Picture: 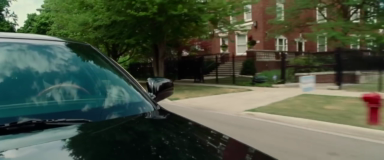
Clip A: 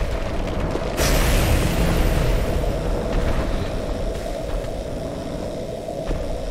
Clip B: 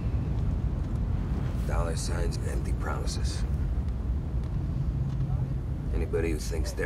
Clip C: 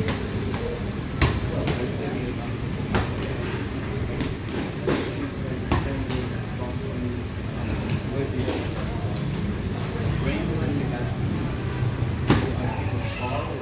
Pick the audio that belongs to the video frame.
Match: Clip B